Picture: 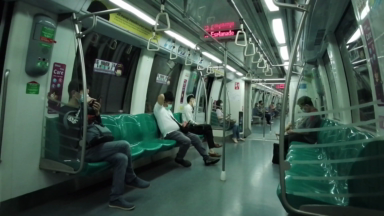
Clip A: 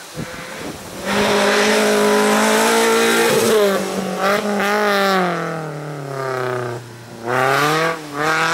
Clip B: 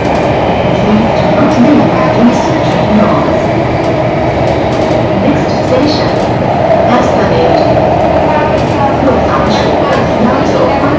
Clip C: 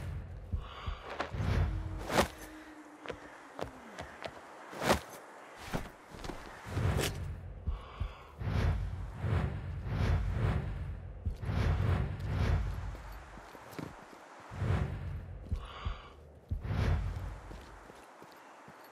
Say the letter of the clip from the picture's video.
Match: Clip B